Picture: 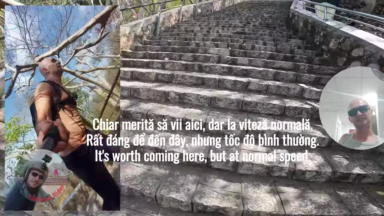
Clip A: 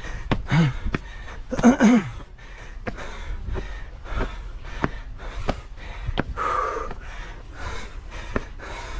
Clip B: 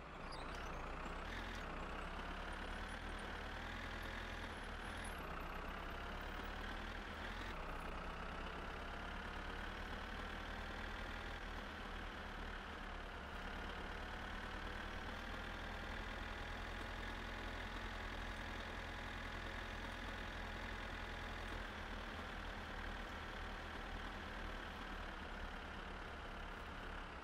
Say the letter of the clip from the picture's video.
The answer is A